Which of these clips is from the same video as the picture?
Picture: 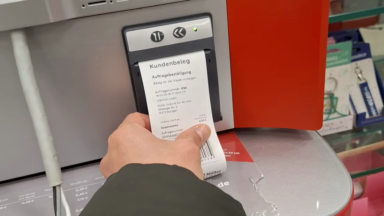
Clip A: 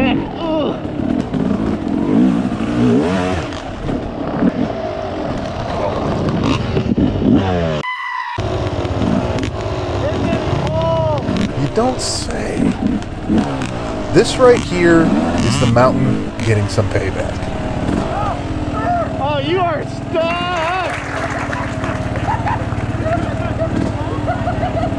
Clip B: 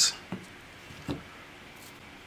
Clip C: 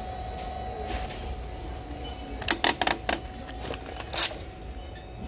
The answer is C